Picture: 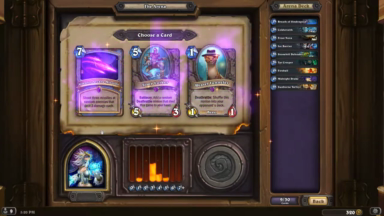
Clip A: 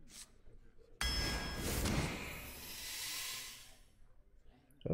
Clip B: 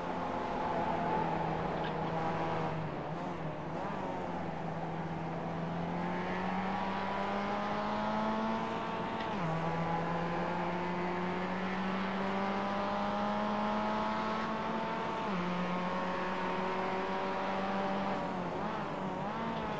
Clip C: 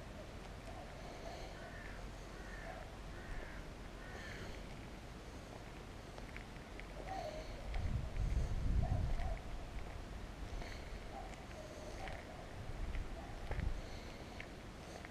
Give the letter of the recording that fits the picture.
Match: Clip A